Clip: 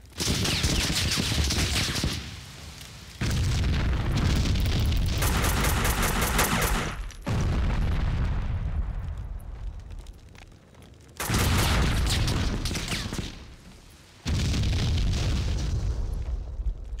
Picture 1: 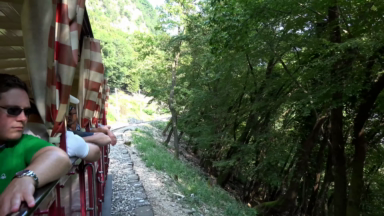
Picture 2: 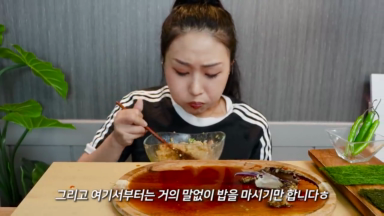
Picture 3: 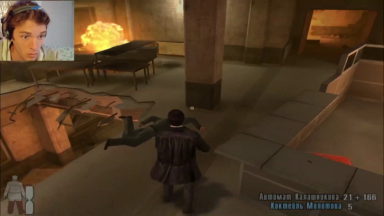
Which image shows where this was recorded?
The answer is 3